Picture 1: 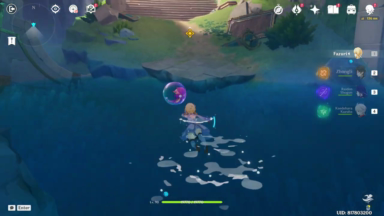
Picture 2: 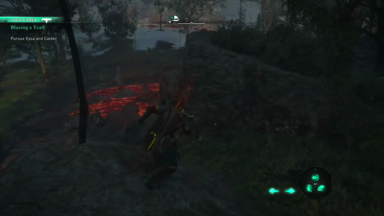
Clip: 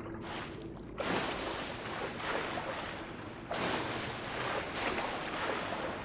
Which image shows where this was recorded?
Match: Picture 1